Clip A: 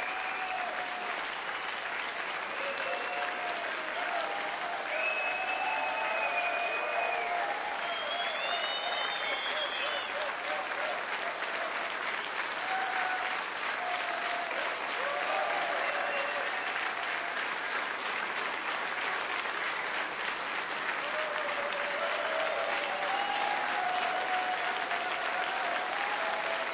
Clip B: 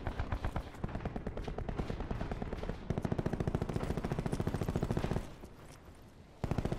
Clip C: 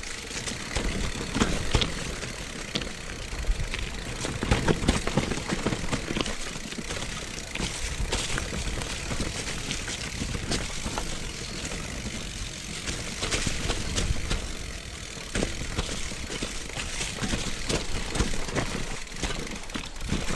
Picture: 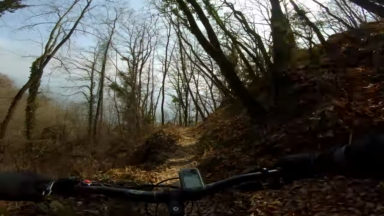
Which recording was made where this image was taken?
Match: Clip C